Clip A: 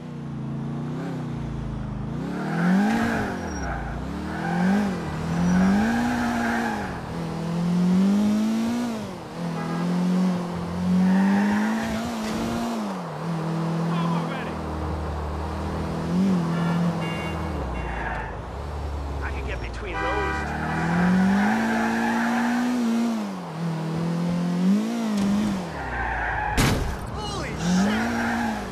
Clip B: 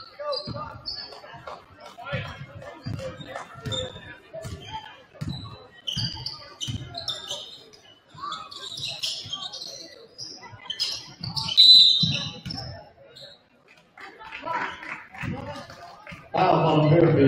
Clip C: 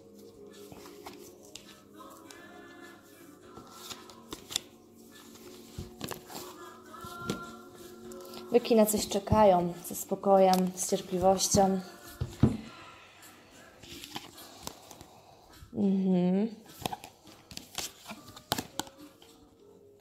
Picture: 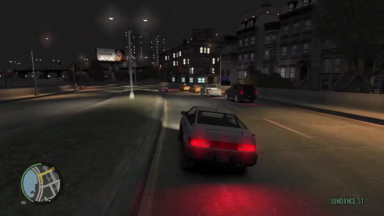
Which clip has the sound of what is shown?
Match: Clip A